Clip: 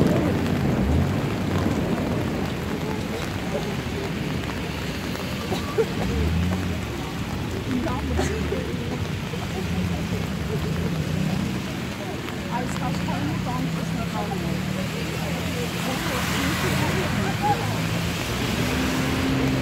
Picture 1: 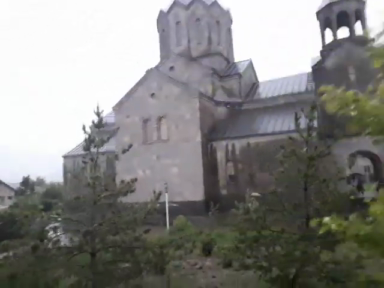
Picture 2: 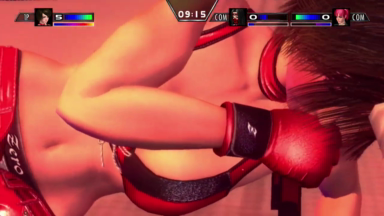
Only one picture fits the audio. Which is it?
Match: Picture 1